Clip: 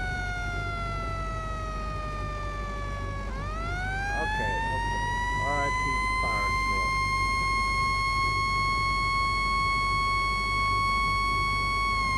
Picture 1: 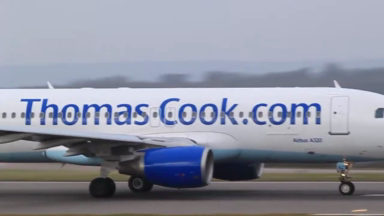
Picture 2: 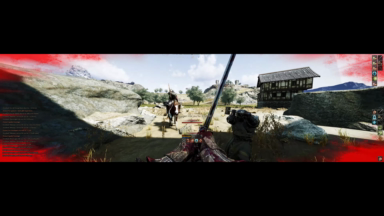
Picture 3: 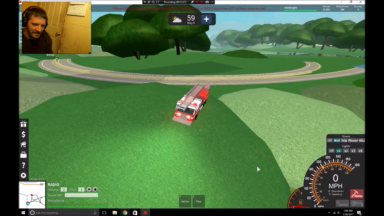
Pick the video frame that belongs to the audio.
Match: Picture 3